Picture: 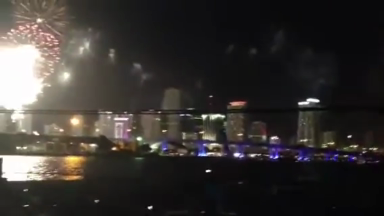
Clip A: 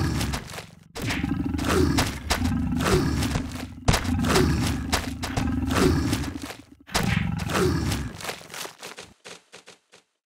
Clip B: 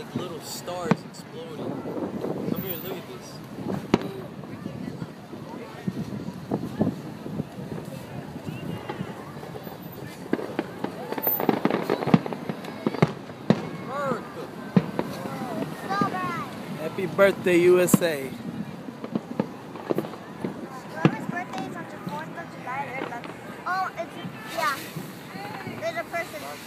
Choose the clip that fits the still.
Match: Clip B